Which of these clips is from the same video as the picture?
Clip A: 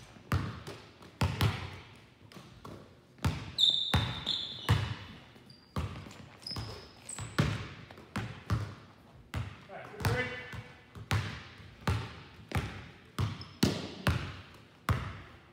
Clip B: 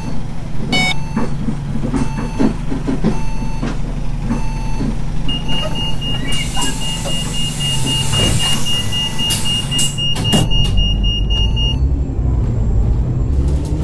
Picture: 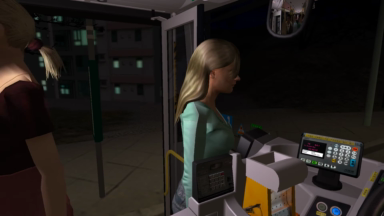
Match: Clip B